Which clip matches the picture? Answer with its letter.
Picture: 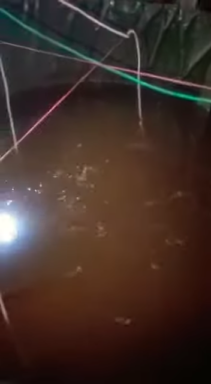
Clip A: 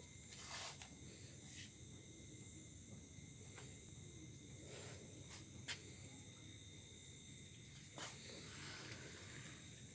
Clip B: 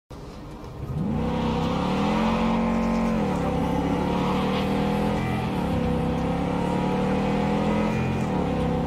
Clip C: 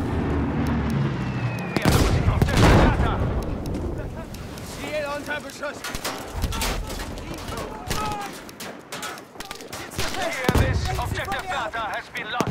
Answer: A